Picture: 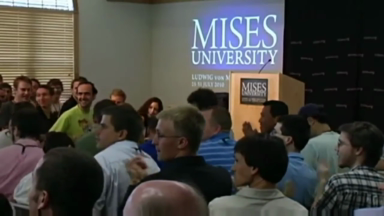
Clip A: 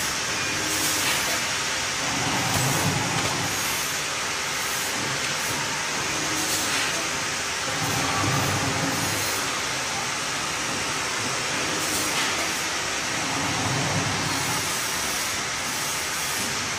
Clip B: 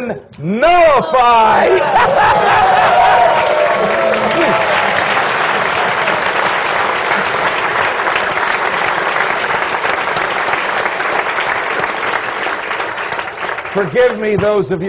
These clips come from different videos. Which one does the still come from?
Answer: B